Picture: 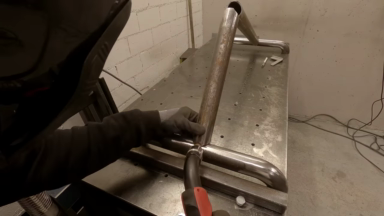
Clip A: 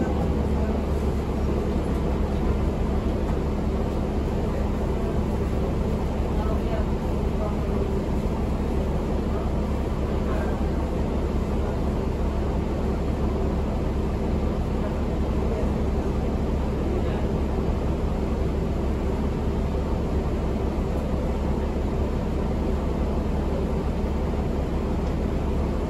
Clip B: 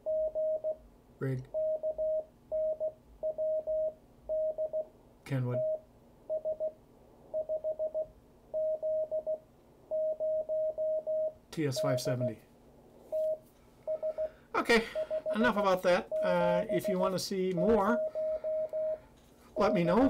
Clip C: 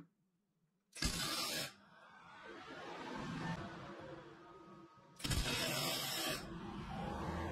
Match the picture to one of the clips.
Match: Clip C